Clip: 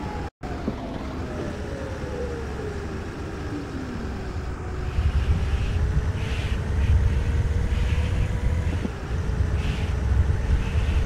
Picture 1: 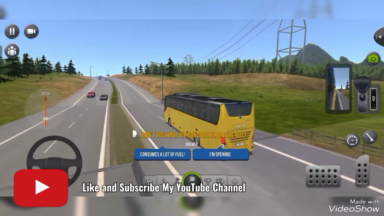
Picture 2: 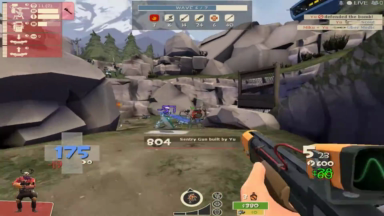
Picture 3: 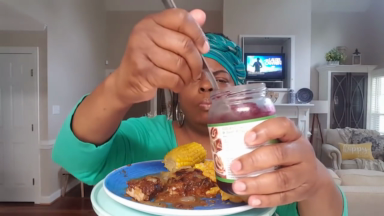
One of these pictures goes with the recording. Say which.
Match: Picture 1